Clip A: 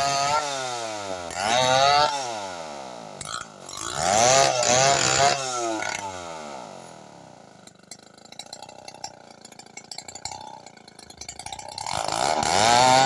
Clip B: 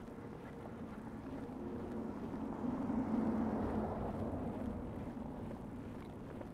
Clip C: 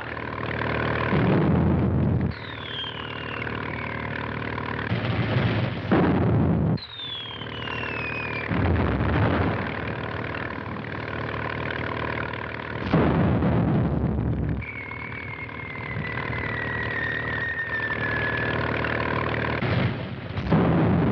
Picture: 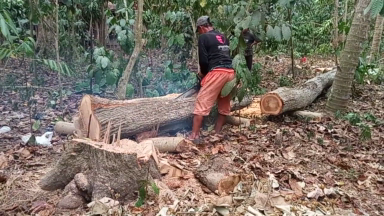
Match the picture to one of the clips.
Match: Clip A